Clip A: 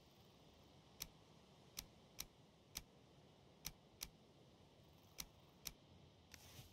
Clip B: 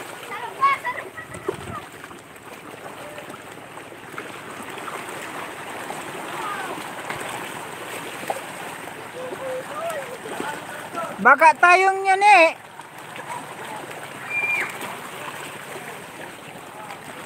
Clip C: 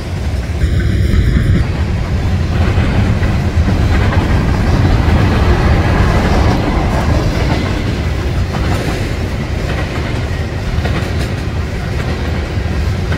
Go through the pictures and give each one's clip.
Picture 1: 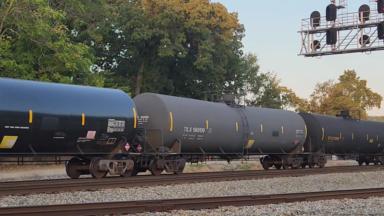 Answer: C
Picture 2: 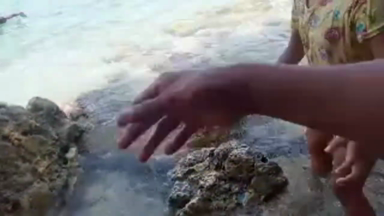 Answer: B